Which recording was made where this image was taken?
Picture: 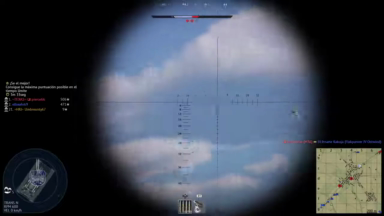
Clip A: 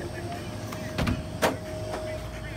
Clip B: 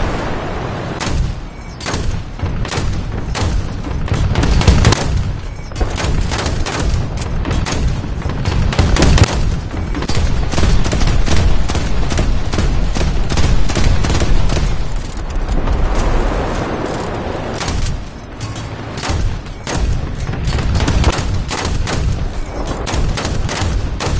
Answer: B